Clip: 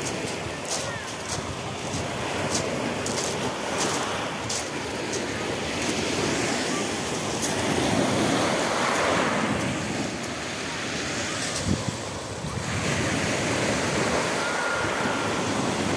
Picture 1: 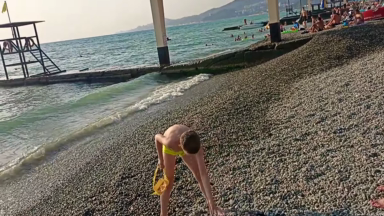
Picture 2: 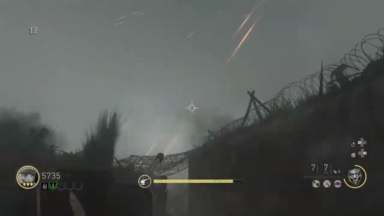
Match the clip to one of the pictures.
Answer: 1